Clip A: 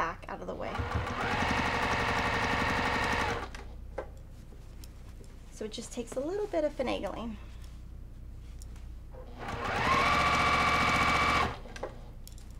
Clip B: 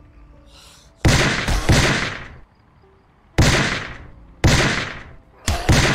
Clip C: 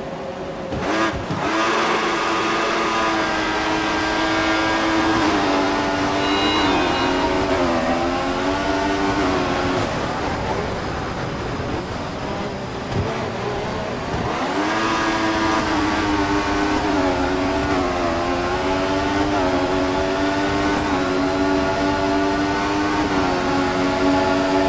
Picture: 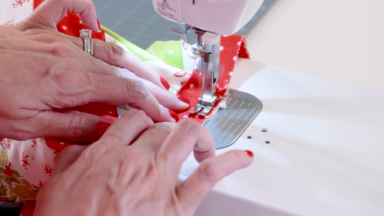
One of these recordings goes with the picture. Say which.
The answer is A